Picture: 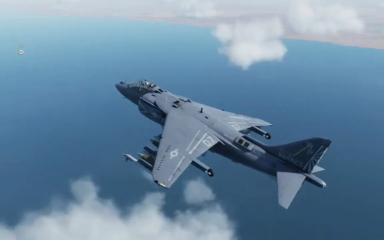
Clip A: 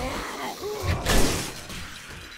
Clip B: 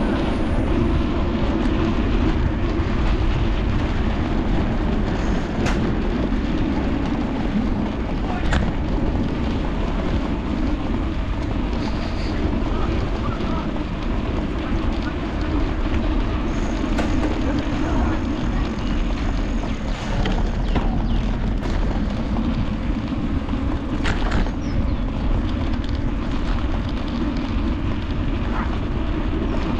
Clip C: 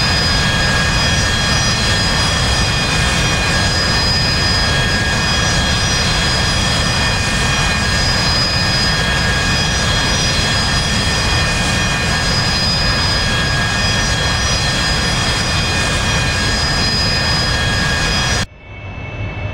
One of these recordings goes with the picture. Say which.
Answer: C